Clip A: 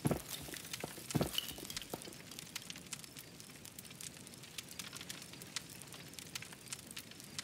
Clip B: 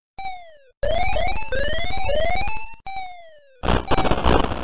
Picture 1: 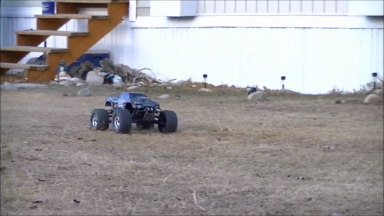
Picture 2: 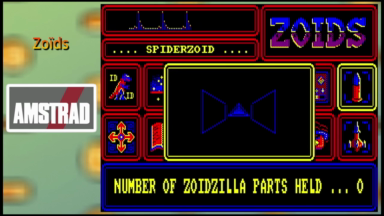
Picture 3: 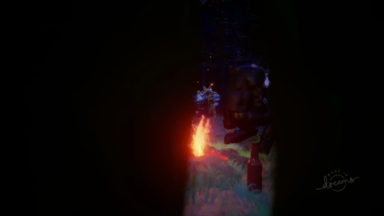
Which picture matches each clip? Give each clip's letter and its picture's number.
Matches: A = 3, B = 2